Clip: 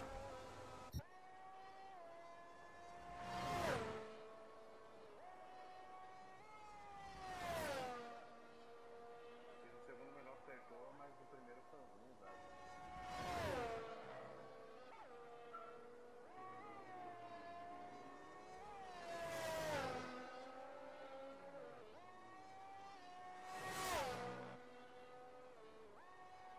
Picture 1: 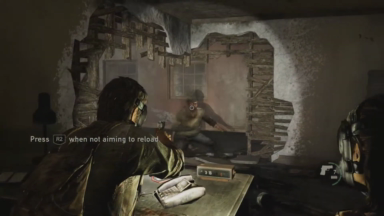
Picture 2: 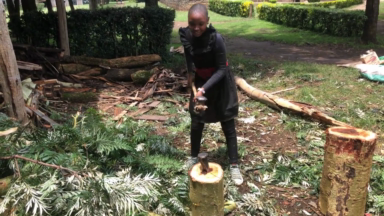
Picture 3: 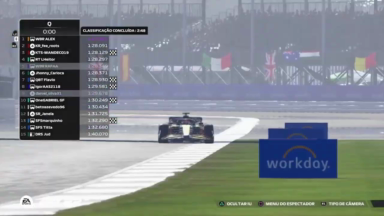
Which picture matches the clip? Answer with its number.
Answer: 3